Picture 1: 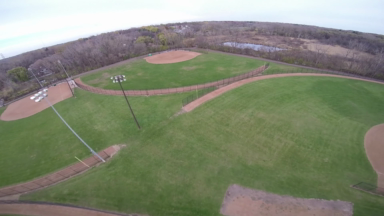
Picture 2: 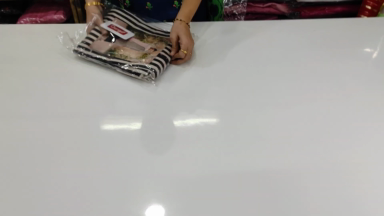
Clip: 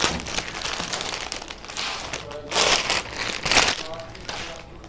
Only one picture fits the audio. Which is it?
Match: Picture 2